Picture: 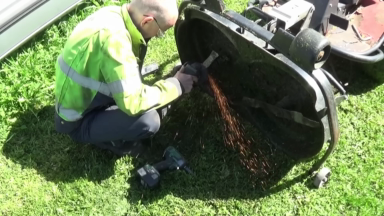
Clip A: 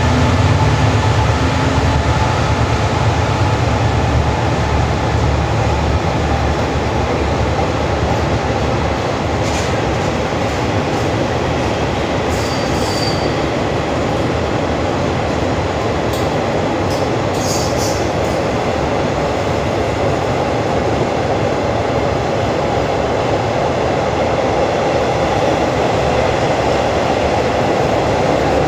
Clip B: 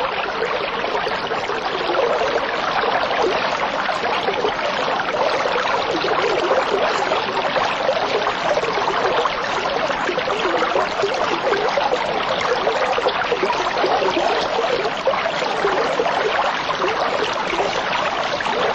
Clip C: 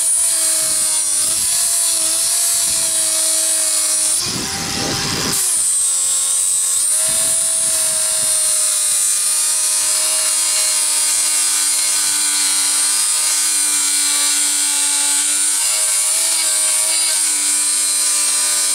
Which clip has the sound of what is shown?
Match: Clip C